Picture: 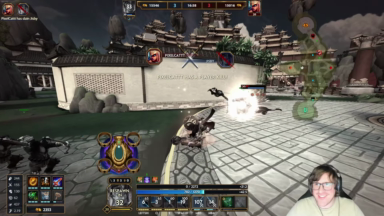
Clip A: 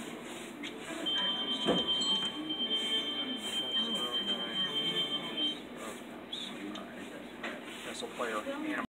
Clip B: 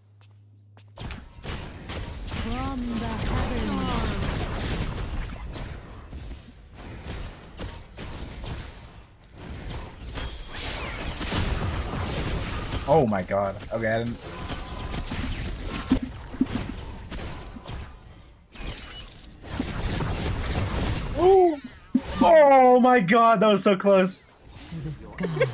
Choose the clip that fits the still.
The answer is B